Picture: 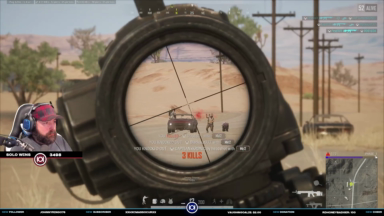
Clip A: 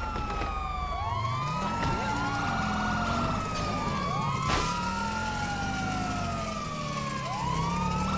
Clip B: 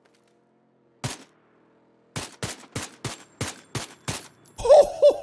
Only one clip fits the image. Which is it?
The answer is B